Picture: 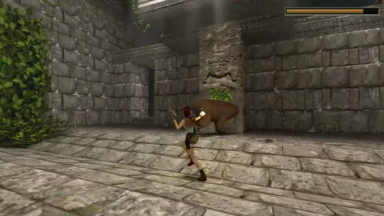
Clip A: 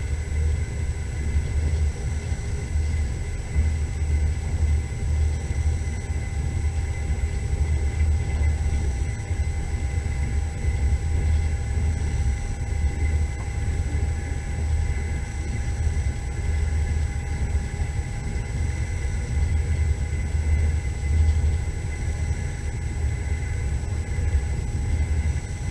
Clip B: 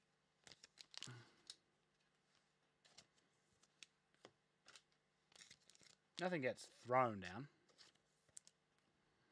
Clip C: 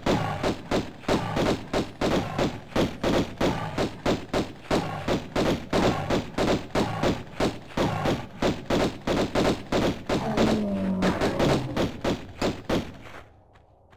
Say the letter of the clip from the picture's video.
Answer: C